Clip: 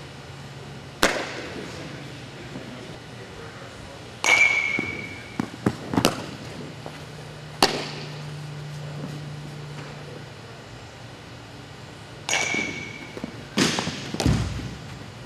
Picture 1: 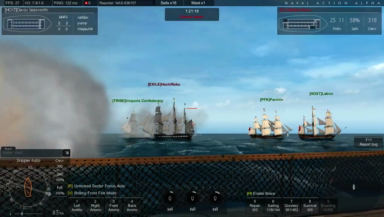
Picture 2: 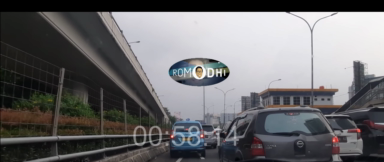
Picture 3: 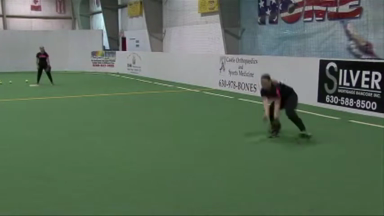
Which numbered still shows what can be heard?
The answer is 3